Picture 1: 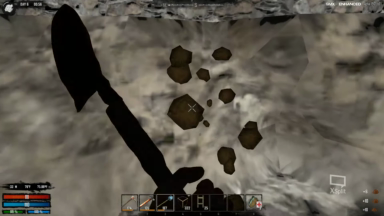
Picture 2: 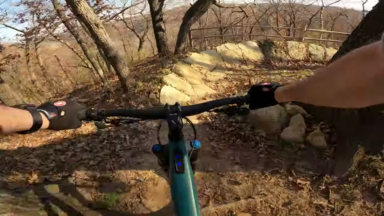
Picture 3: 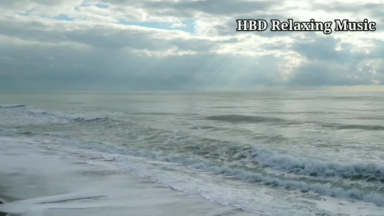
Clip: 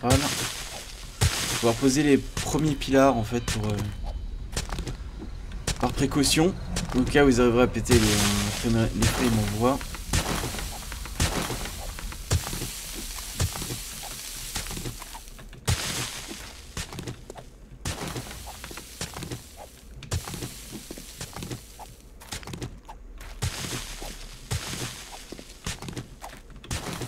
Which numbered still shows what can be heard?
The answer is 1